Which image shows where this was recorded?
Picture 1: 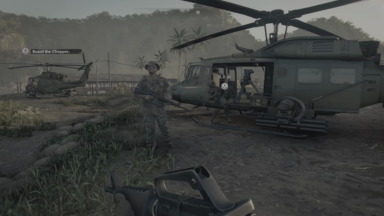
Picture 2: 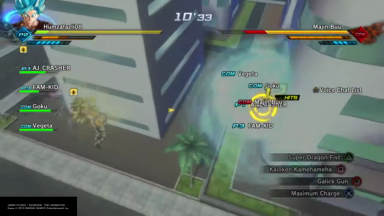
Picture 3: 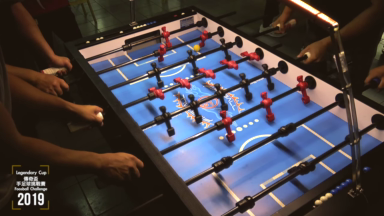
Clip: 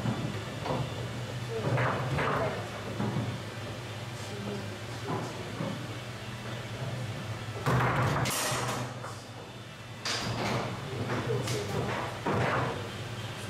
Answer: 3